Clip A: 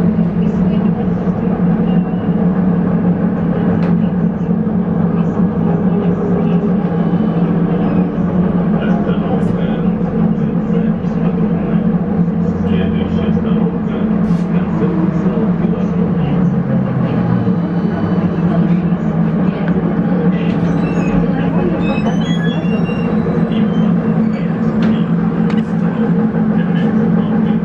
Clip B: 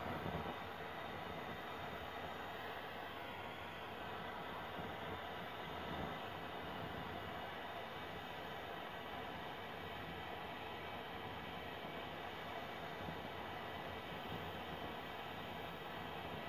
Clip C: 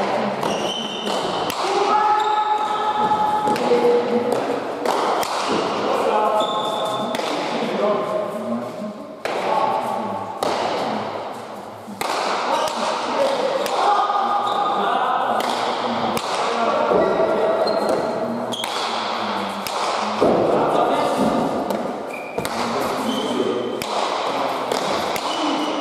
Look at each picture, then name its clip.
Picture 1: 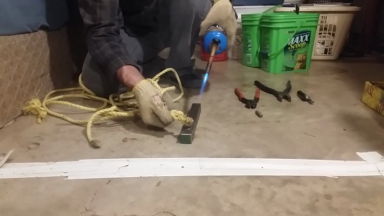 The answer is B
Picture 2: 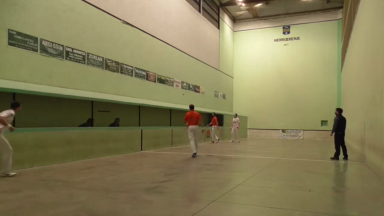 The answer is C